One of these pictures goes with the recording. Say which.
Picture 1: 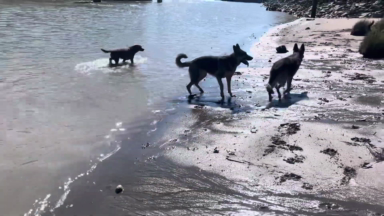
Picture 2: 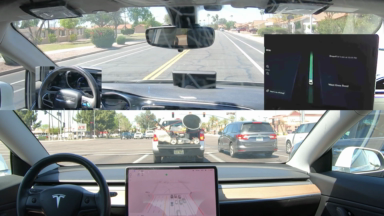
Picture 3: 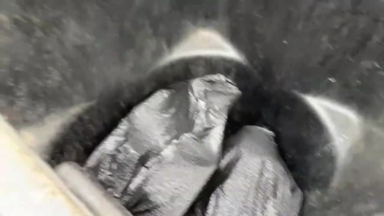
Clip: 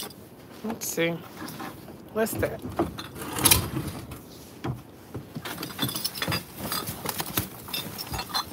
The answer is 3